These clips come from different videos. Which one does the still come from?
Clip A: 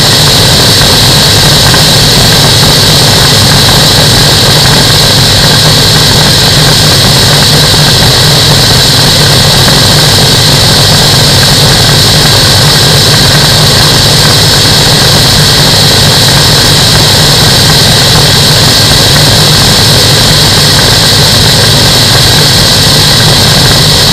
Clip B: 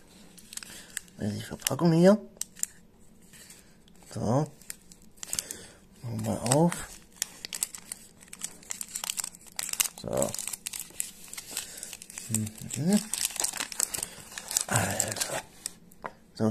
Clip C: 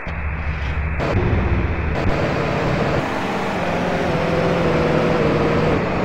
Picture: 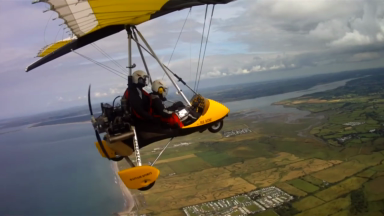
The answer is A